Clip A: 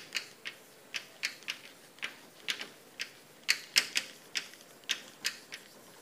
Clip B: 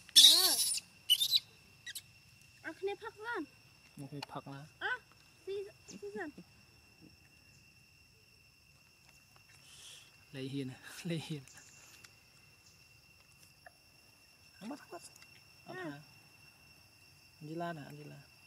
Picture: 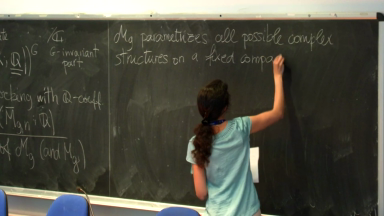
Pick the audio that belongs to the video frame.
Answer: A